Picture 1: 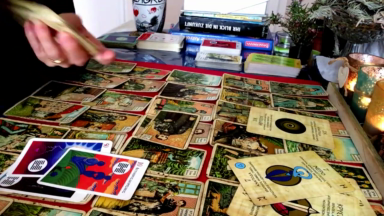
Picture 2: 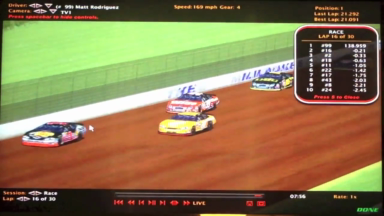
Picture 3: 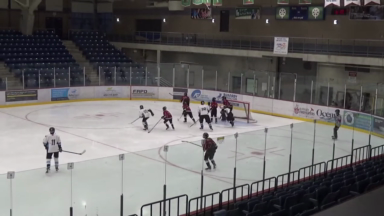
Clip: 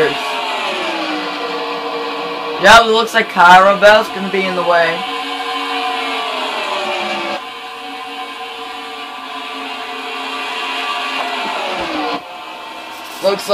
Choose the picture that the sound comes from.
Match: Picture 2